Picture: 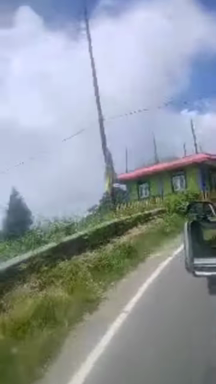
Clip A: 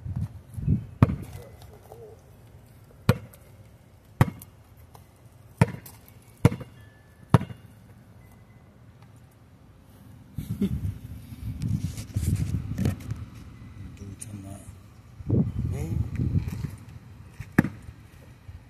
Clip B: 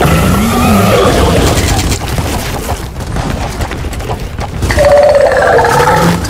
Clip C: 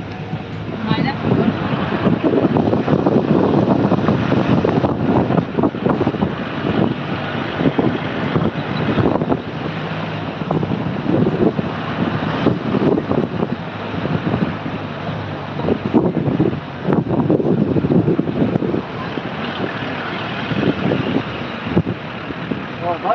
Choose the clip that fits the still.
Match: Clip C